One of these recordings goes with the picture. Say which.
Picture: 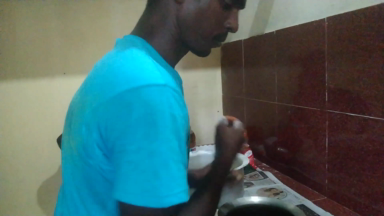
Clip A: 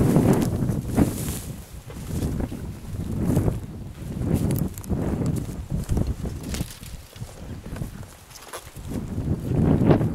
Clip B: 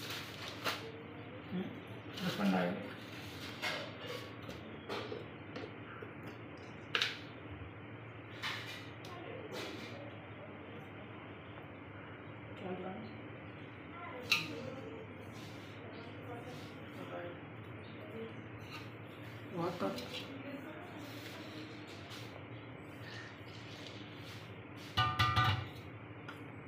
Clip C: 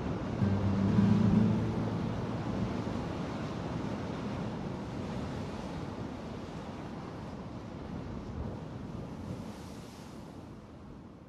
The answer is B